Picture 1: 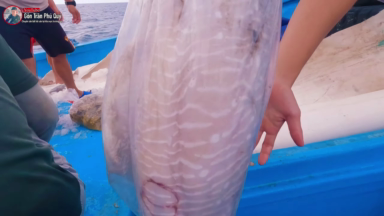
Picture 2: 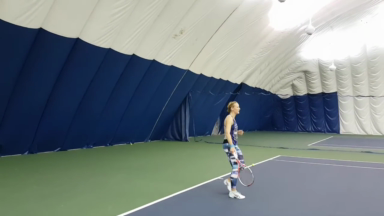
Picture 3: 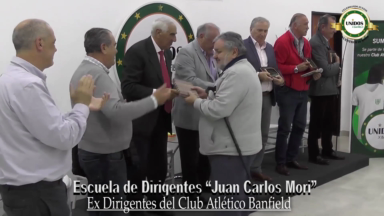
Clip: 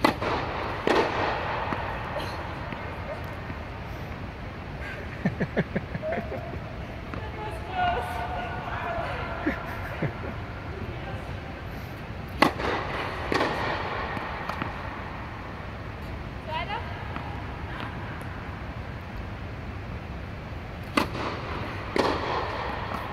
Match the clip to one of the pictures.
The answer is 2